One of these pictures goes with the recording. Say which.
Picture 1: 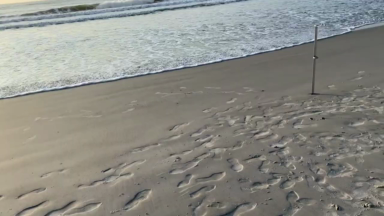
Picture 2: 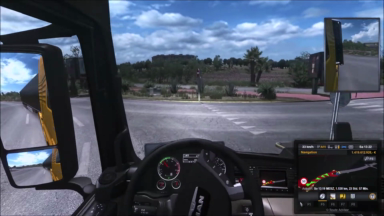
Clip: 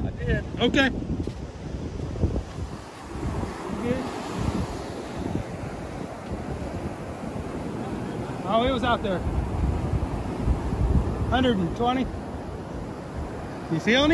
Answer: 1